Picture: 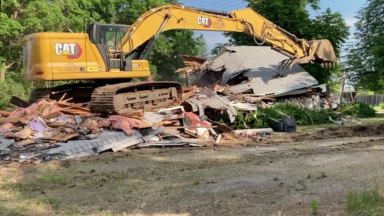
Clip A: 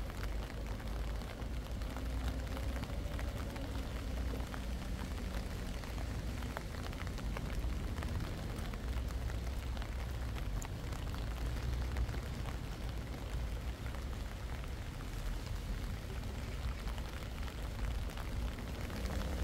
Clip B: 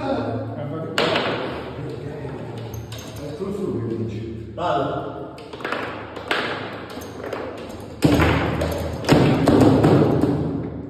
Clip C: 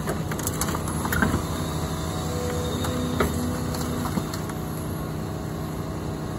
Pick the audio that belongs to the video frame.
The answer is C